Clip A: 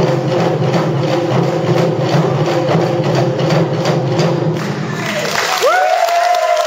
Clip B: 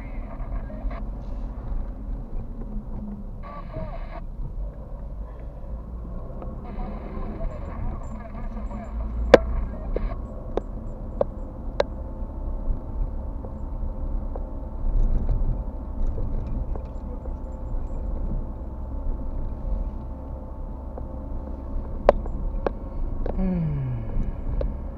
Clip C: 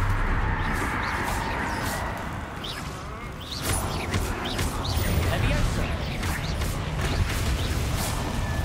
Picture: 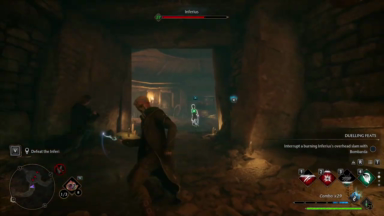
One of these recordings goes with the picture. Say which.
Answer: C